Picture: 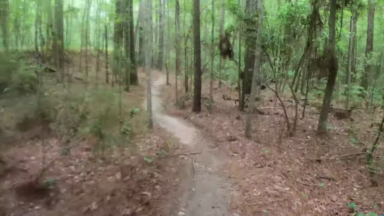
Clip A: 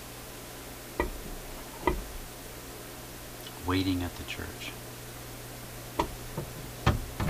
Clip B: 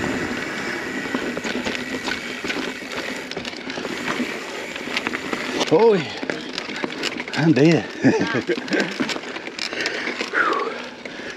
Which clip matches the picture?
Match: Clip B